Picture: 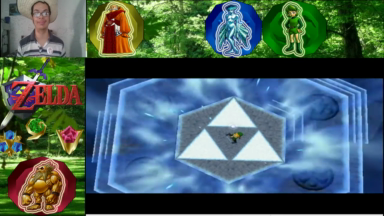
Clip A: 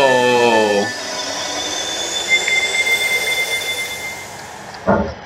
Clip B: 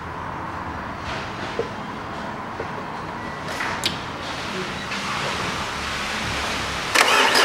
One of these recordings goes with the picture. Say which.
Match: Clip A